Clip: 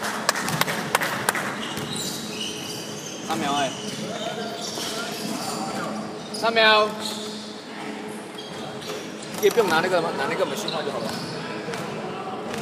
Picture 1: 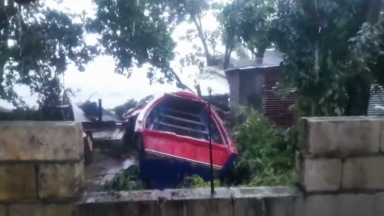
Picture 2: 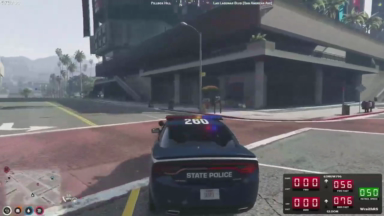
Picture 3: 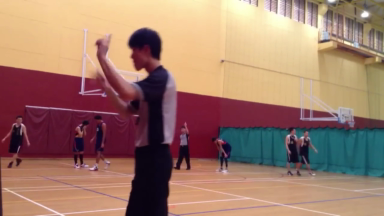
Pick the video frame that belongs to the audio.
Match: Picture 3